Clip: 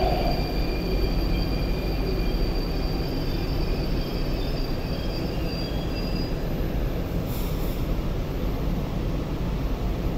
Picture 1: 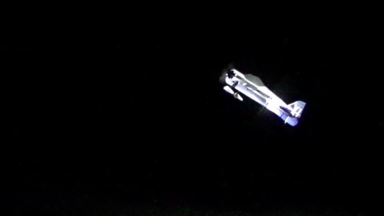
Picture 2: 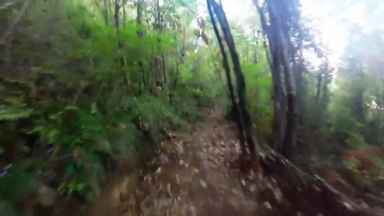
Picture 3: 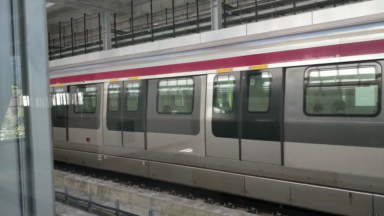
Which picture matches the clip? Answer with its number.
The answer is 3